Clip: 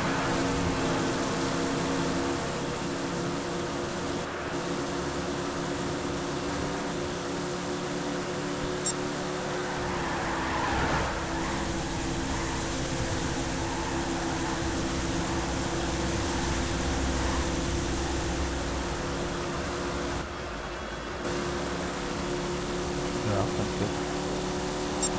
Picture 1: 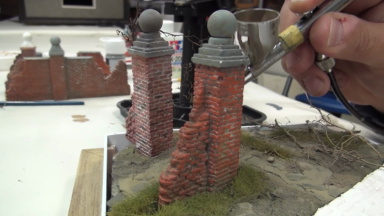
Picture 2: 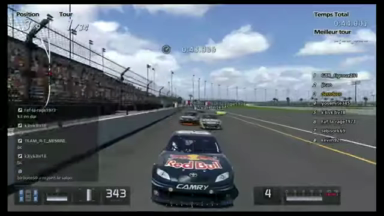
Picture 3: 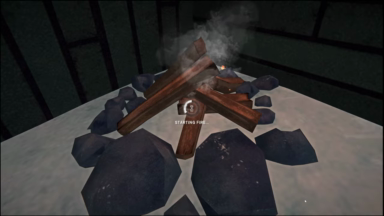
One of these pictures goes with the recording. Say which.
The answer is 2